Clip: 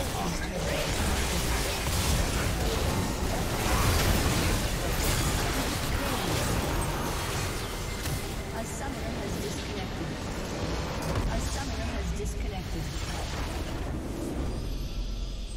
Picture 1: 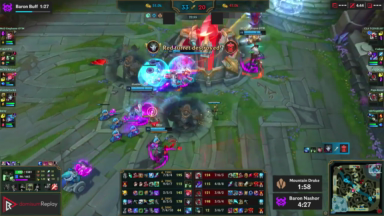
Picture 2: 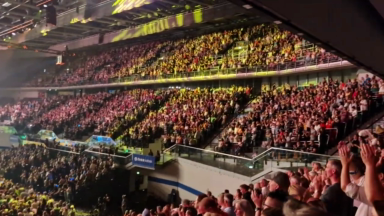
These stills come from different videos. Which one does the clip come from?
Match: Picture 1